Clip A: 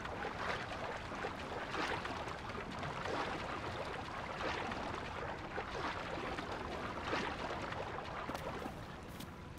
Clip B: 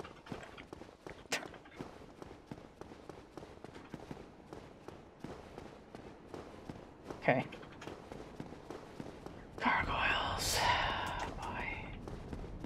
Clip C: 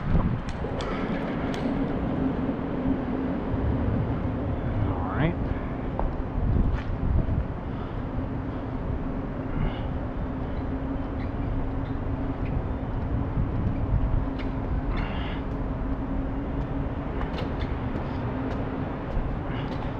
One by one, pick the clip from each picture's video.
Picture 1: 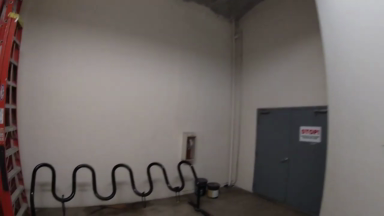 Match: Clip C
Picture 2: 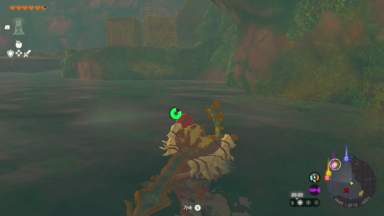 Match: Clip A